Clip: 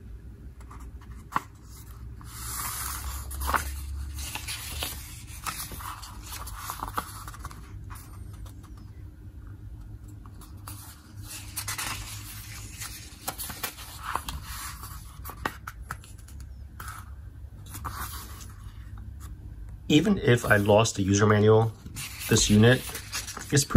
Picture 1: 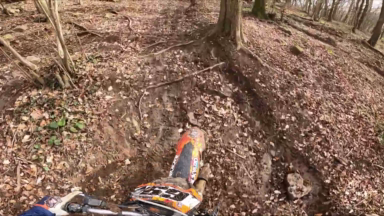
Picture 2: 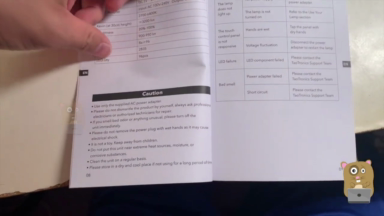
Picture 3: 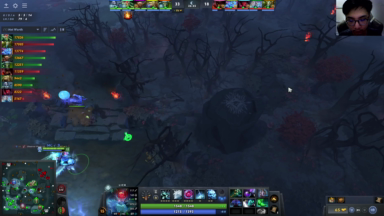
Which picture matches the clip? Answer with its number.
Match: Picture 2